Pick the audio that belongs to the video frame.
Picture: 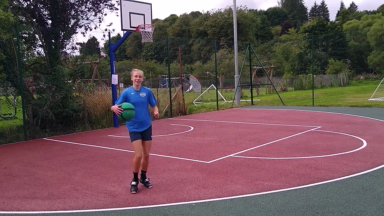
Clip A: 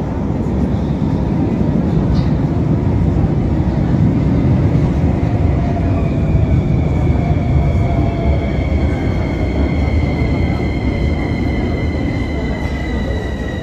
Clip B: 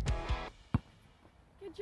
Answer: B